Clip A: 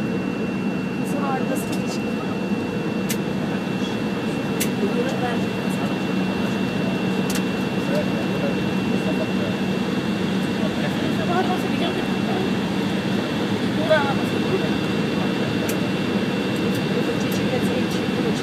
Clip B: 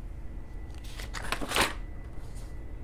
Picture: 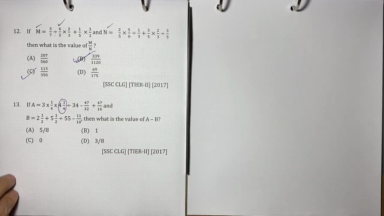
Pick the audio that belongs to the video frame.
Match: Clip B